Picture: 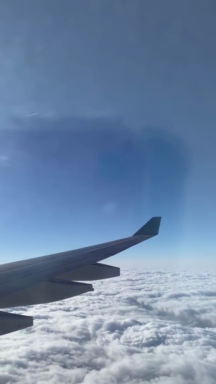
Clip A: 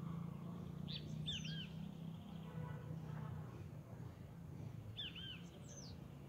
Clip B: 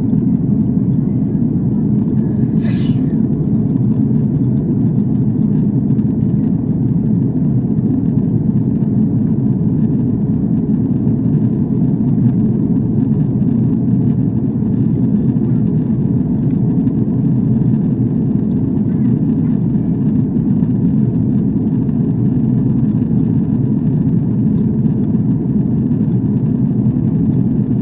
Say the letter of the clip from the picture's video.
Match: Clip B